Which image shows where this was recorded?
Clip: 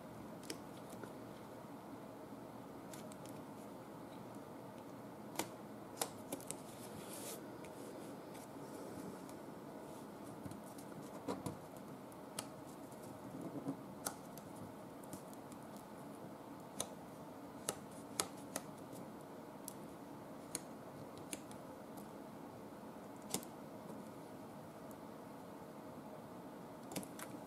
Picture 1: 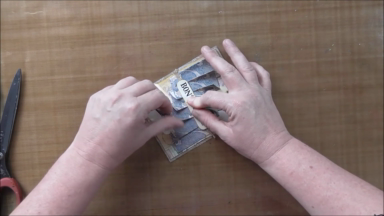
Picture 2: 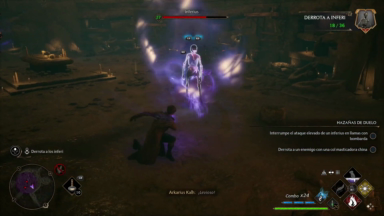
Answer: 1